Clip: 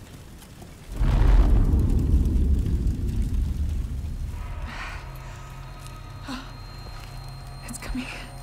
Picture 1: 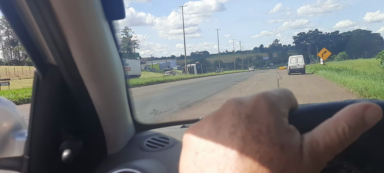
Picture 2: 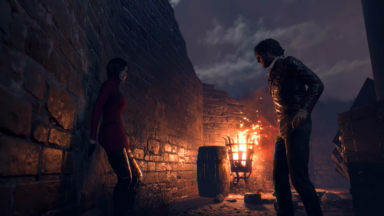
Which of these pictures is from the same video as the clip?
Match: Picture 2